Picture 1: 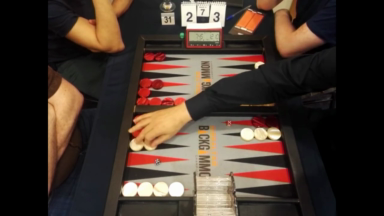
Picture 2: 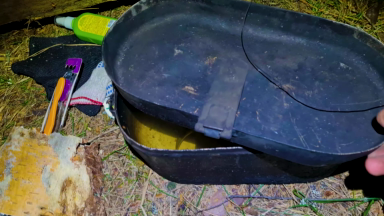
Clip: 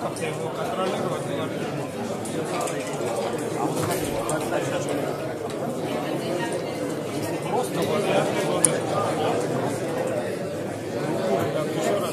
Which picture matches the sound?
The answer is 1